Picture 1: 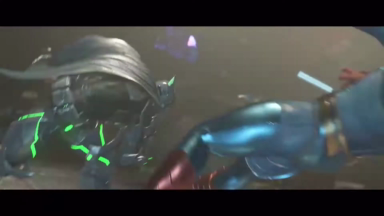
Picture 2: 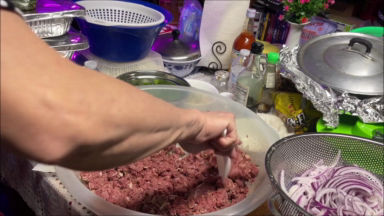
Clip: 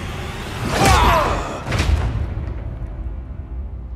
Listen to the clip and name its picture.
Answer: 1